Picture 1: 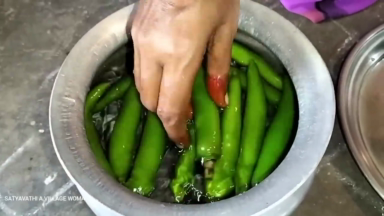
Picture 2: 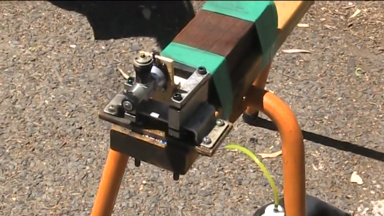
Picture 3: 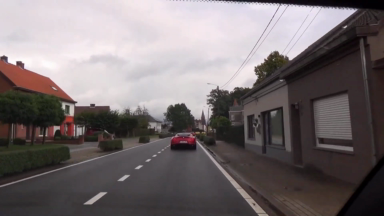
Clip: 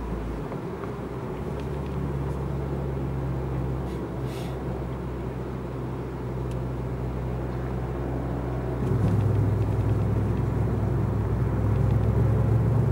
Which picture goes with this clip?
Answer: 3